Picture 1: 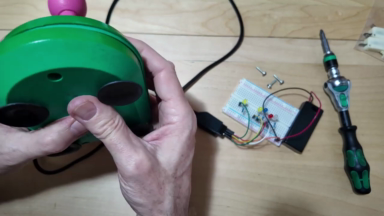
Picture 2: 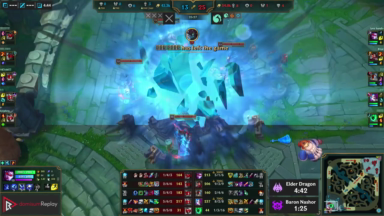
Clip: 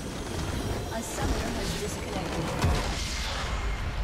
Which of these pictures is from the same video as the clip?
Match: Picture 2